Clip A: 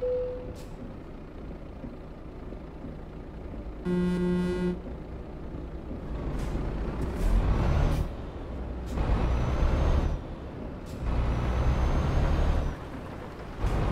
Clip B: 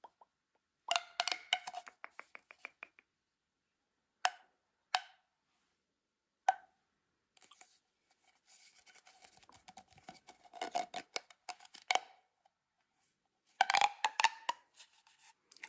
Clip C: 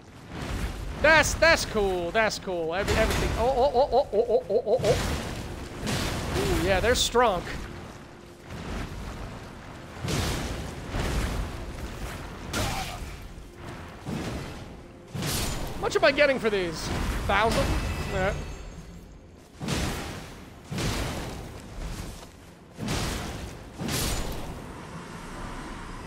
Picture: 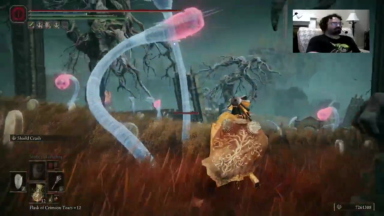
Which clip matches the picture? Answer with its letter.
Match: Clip C